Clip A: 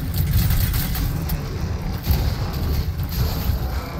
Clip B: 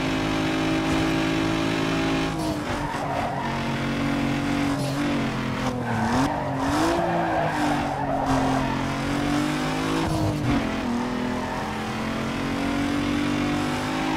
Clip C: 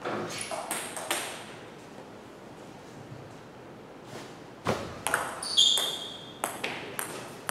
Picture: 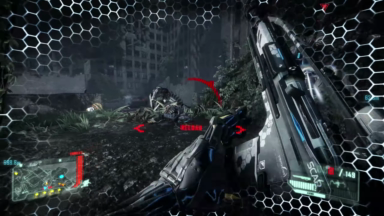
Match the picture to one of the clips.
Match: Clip A